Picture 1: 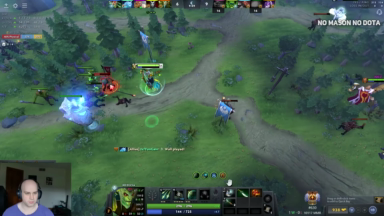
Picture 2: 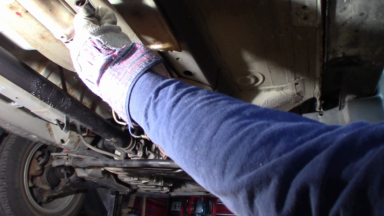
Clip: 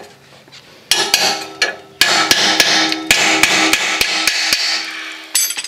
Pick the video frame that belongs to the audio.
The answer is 2